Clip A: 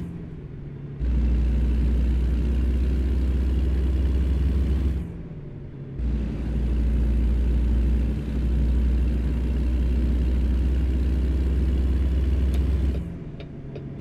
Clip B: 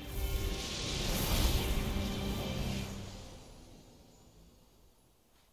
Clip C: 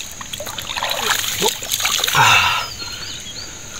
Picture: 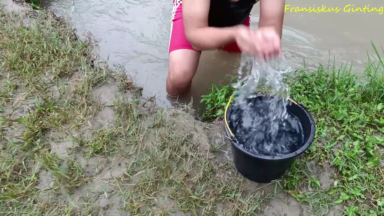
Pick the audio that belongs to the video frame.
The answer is C